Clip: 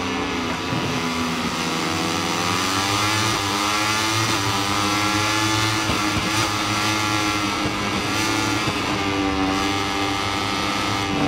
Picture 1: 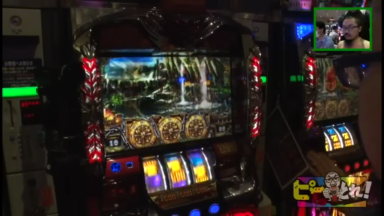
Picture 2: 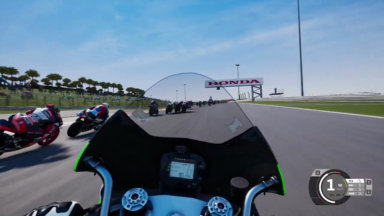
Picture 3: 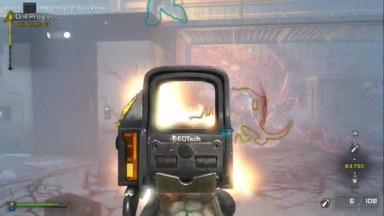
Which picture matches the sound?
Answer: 2